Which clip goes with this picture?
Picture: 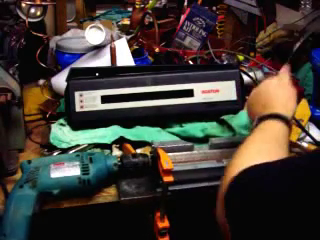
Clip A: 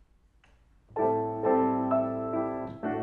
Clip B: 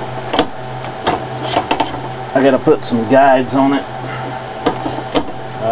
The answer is B